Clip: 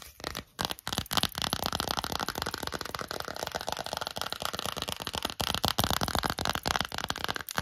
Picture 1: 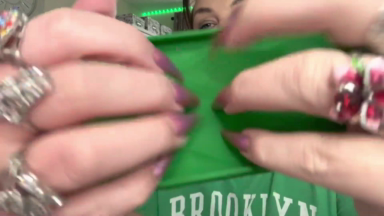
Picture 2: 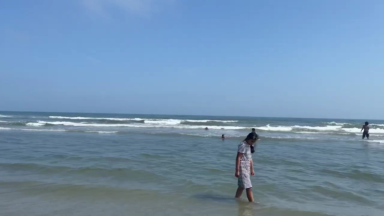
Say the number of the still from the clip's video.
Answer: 1